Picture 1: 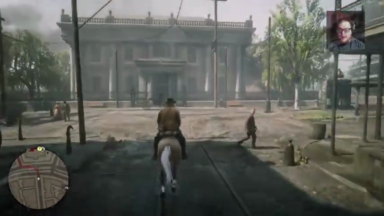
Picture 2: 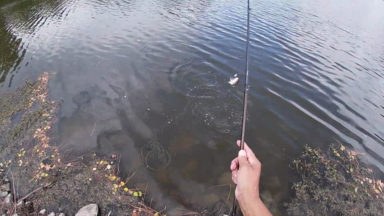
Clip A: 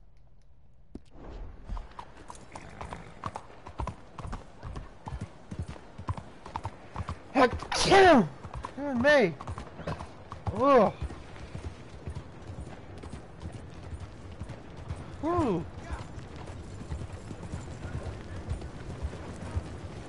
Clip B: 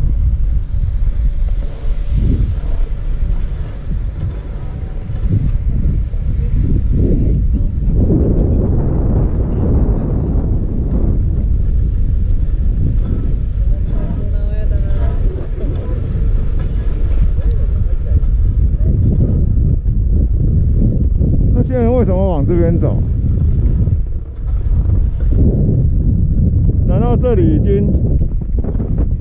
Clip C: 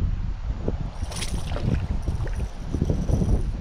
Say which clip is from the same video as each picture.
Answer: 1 A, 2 C